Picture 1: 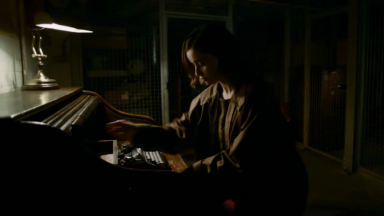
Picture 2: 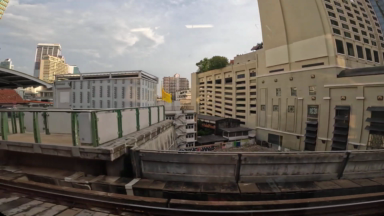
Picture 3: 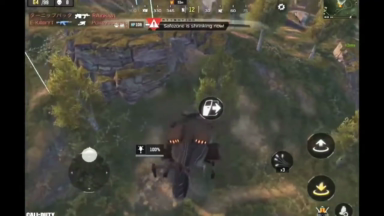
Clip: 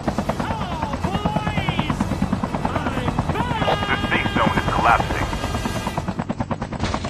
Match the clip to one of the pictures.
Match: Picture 3